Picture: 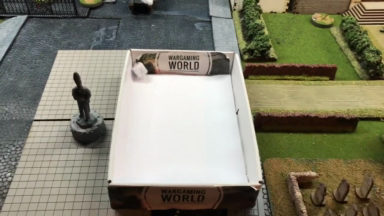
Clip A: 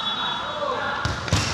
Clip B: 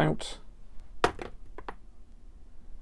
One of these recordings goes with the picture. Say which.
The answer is B